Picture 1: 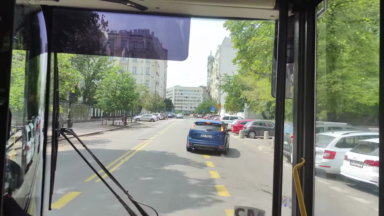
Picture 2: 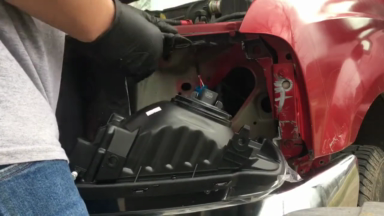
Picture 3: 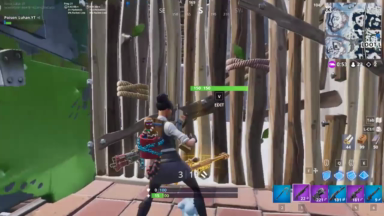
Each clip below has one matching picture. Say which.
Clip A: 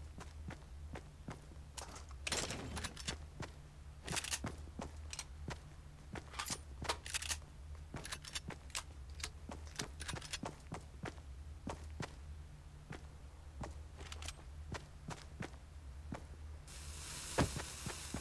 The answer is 3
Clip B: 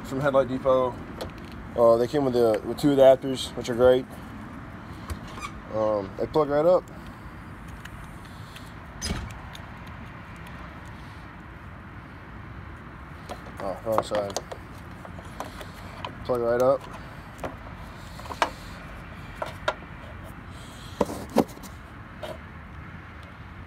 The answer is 2